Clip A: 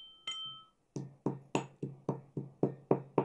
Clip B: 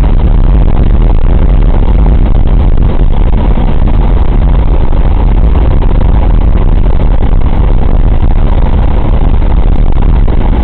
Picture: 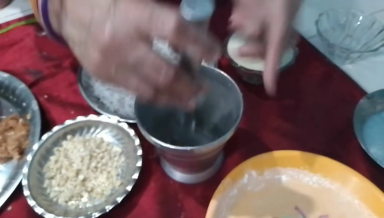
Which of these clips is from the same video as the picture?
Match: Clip A